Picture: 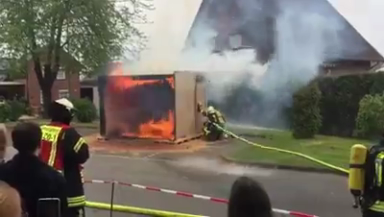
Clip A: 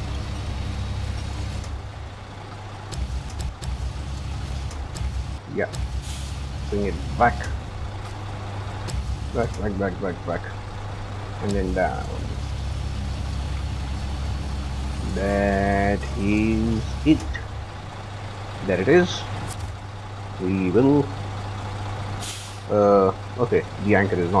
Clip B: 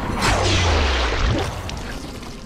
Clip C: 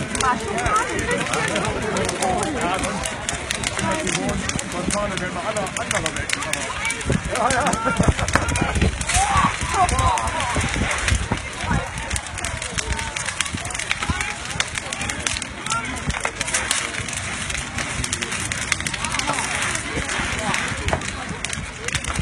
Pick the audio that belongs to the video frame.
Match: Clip C